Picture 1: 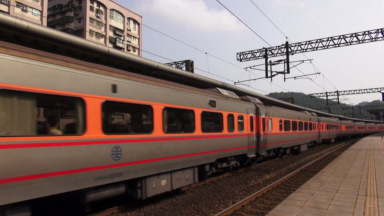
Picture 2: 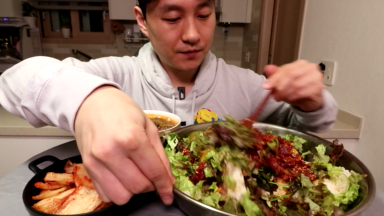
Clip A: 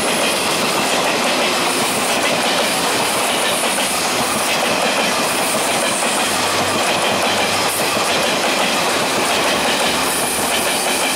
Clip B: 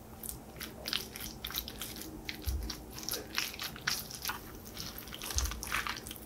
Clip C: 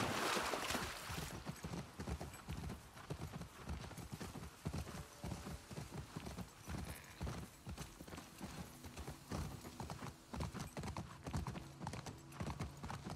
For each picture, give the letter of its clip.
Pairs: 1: A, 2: B